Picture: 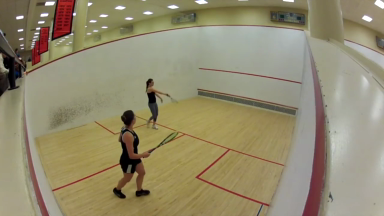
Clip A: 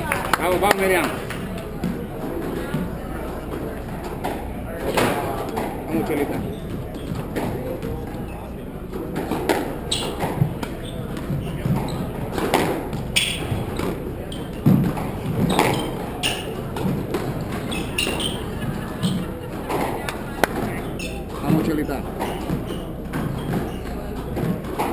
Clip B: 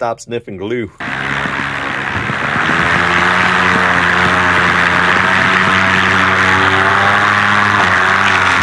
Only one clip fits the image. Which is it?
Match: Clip A